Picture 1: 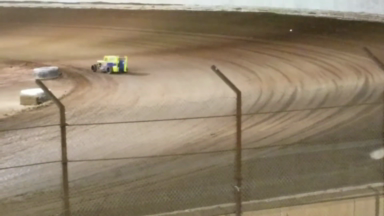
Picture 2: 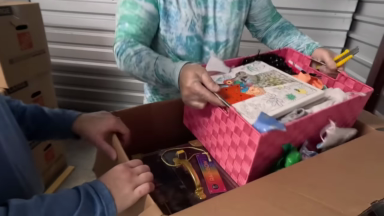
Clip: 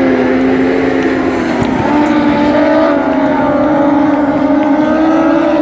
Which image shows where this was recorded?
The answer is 1